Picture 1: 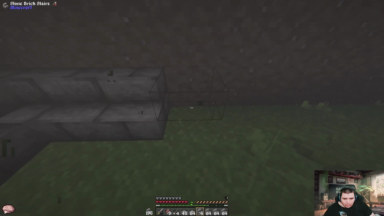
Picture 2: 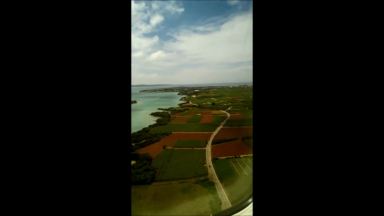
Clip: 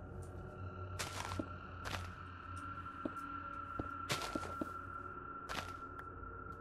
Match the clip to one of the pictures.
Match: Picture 1